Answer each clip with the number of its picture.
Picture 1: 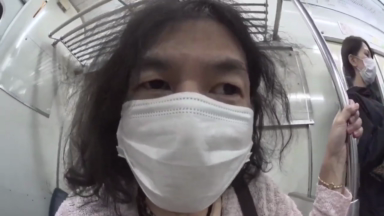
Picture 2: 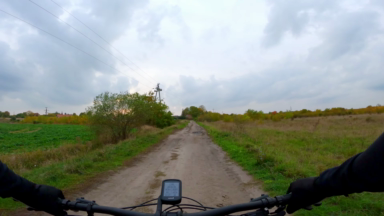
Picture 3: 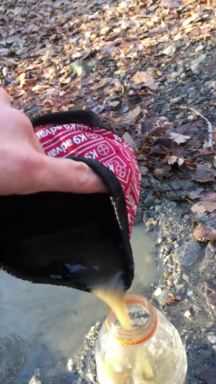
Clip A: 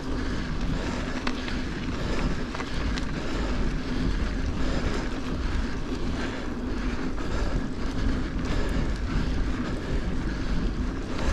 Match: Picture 2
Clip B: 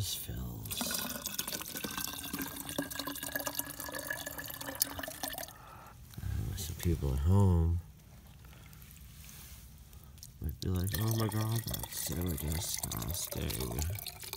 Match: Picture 3